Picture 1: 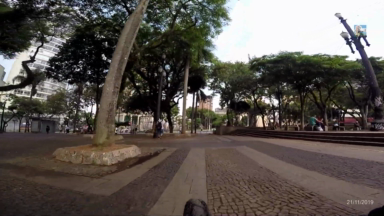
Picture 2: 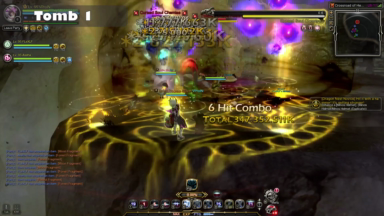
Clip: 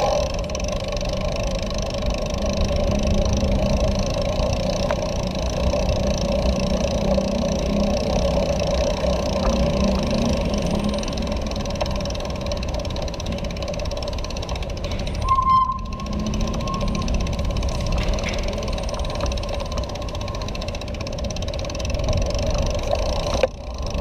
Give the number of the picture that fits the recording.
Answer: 1